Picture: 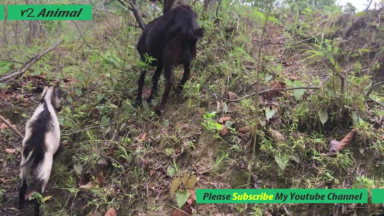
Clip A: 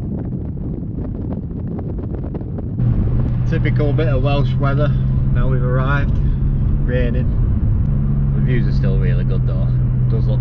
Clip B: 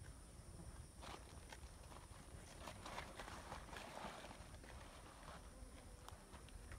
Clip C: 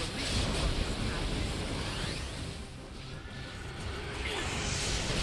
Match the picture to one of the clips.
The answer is B